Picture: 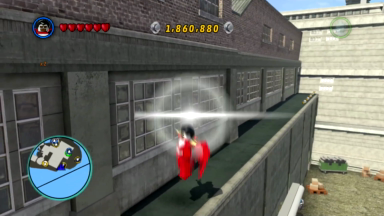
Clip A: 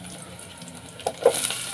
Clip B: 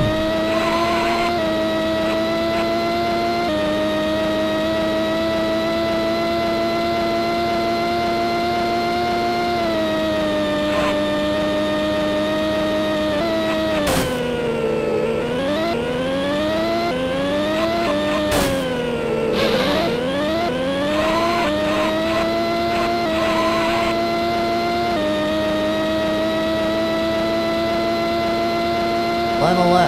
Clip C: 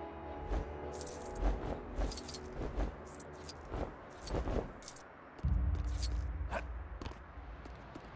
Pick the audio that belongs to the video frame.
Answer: C